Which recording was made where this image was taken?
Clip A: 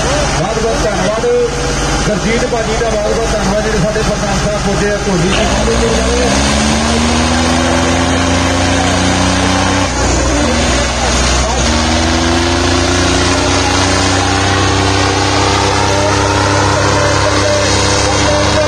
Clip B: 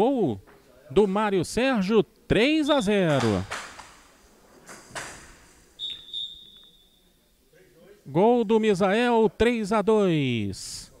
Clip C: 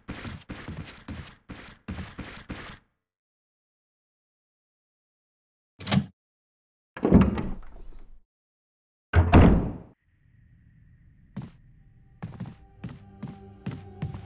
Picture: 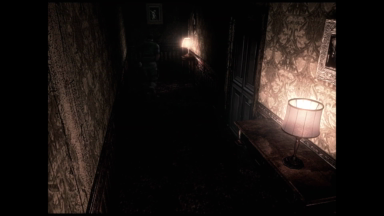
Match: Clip C